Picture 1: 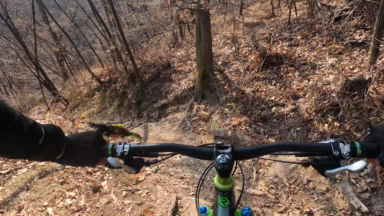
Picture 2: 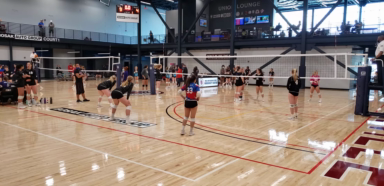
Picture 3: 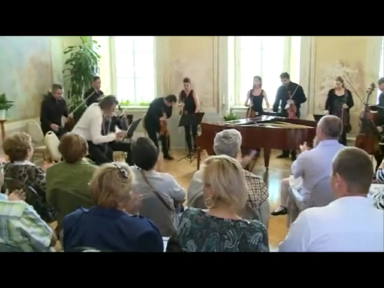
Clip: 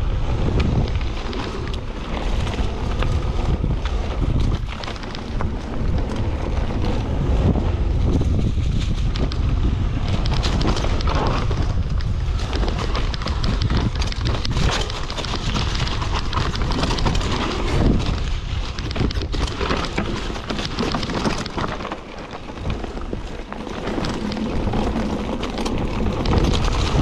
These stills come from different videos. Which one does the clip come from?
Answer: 1